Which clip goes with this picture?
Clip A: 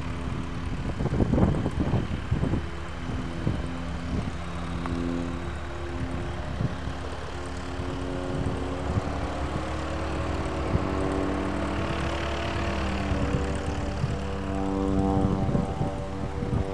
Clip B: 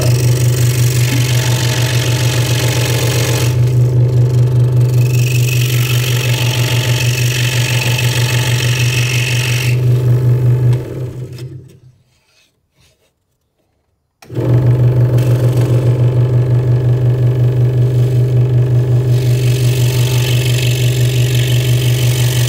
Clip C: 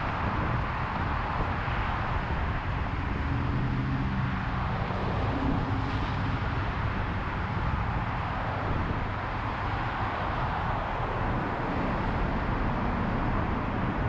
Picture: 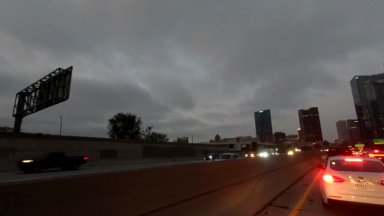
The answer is C